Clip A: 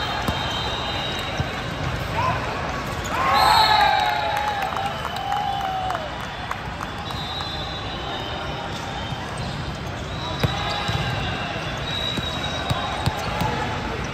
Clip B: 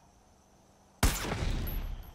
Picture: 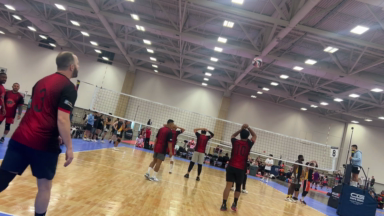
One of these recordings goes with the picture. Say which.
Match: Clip A